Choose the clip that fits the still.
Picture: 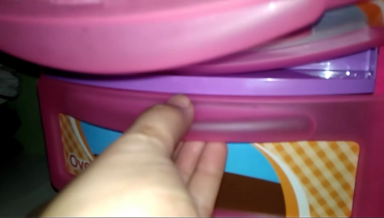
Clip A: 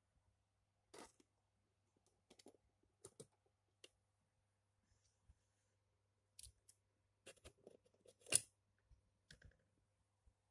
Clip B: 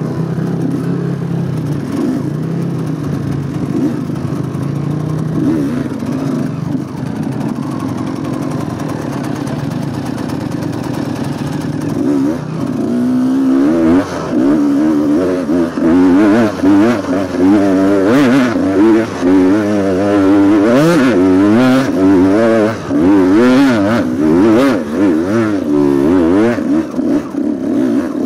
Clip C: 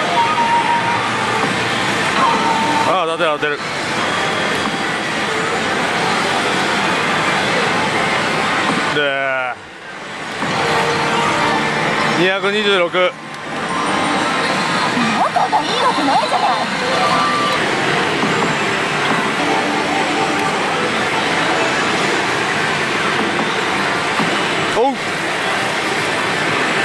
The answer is A